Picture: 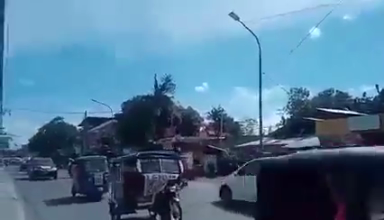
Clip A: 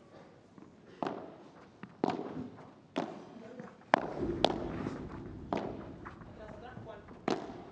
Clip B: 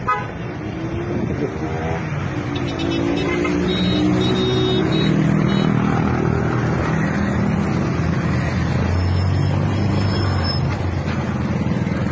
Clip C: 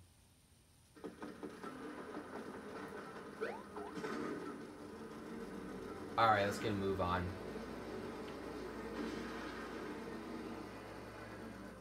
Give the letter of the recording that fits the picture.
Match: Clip B